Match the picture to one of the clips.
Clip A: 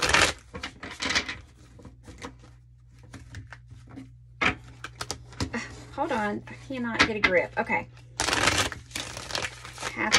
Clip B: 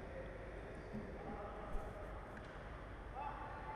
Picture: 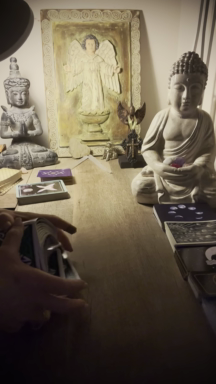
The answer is A